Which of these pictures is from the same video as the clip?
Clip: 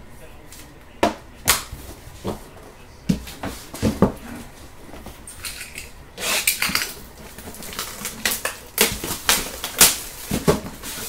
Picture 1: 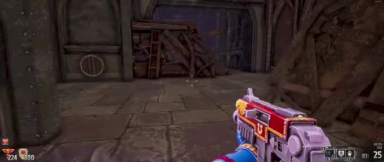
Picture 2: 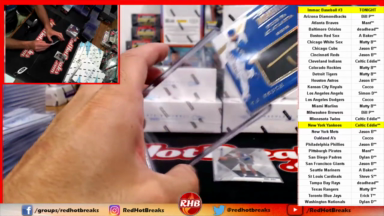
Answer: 2